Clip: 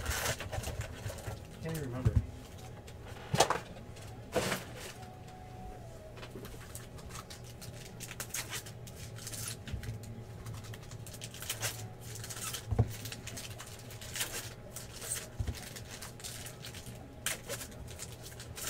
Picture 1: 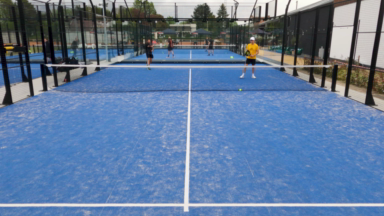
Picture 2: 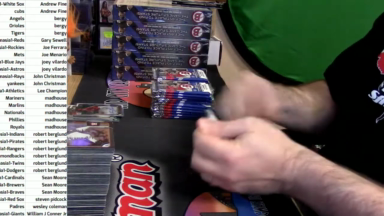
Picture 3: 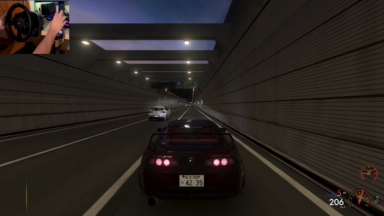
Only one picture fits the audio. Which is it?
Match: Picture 2